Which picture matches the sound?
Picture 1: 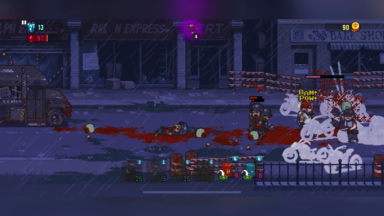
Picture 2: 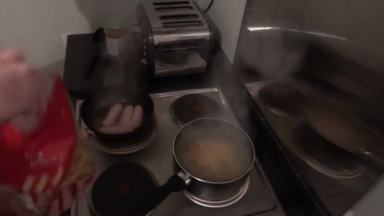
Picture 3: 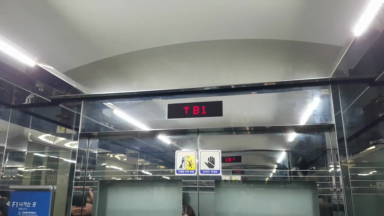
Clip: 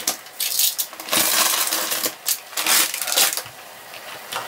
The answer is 2